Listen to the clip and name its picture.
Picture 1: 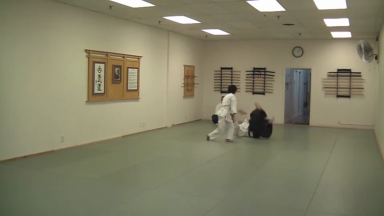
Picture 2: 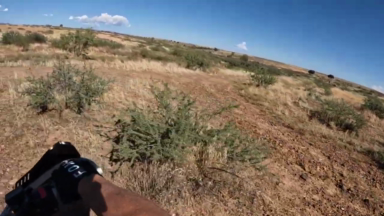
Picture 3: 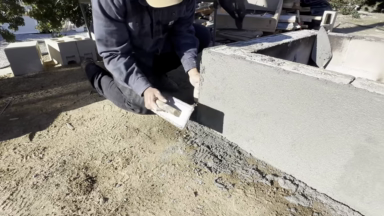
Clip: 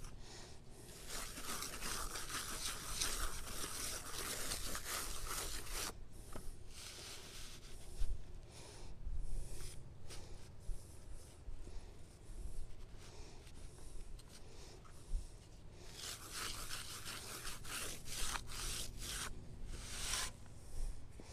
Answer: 3